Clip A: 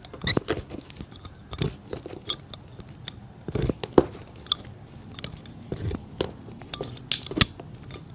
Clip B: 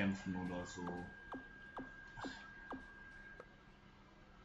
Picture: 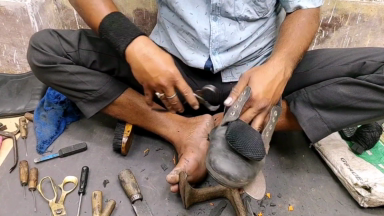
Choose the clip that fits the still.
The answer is A